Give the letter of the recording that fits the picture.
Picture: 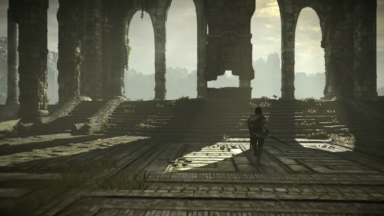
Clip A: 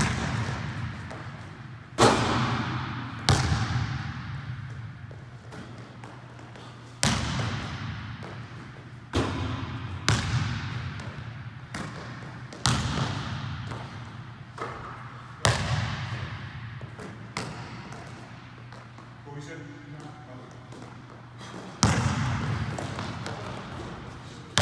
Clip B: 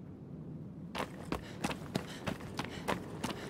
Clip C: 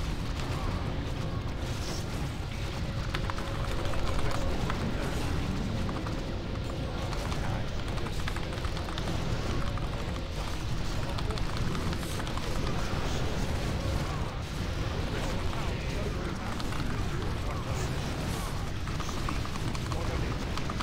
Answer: B